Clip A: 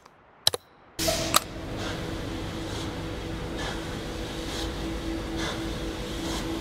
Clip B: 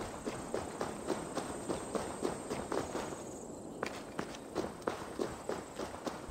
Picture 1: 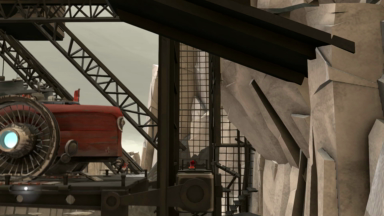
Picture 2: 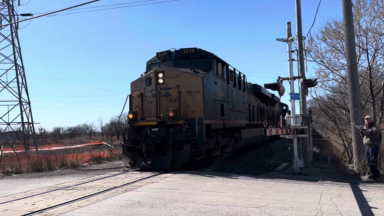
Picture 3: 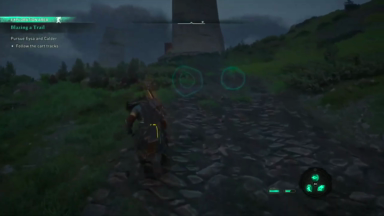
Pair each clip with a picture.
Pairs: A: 1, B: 3